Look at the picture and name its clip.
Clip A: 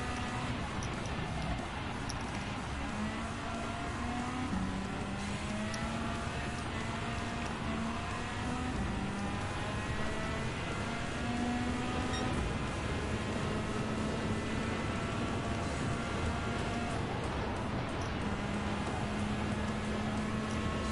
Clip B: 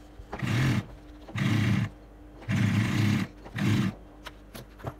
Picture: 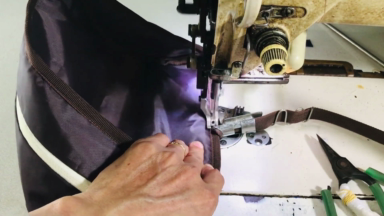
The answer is B